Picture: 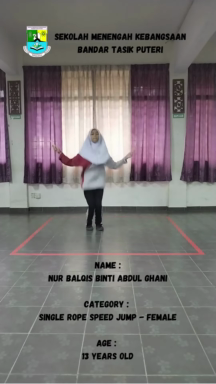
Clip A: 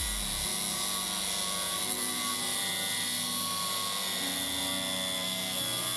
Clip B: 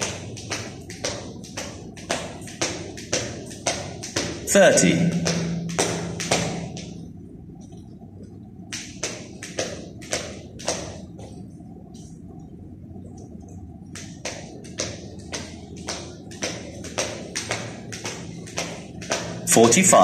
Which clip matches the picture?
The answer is B